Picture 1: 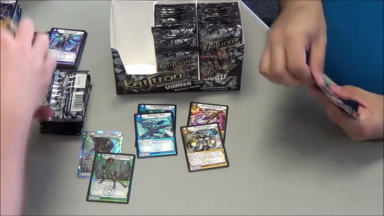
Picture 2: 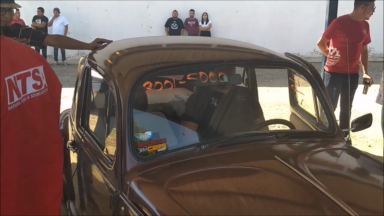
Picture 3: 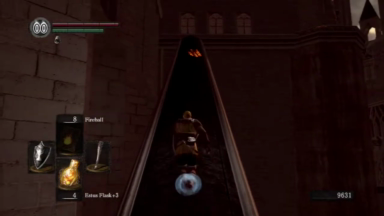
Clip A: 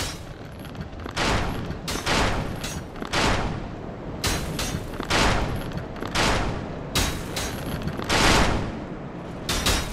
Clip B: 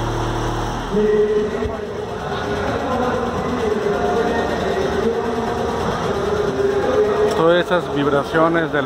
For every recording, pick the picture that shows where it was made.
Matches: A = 3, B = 2